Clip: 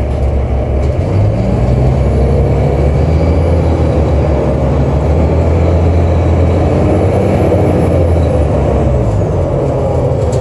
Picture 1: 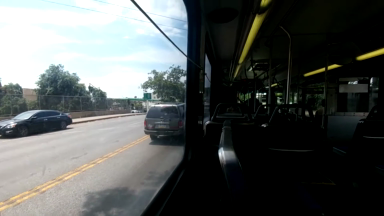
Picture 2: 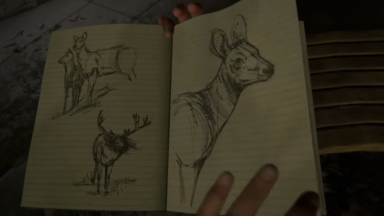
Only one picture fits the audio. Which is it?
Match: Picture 1